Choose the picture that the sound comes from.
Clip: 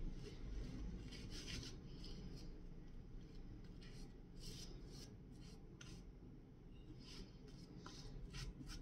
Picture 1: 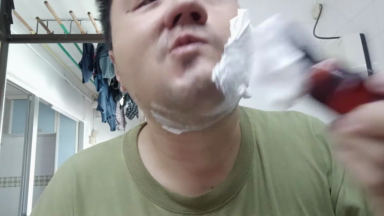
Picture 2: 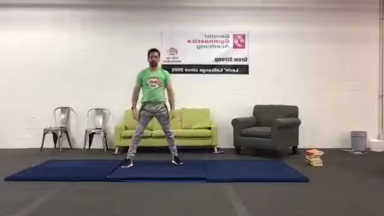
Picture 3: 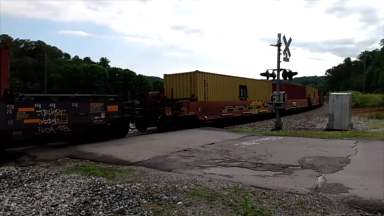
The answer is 1